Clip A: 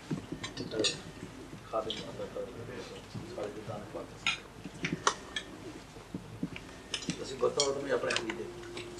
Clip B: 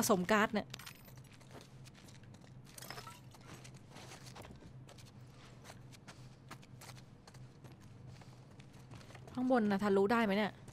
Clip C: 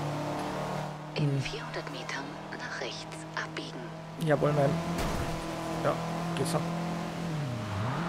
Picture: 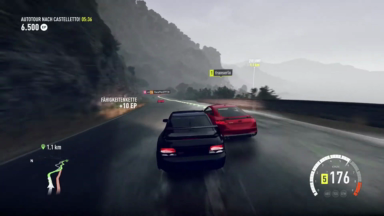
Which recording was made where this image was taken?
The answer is C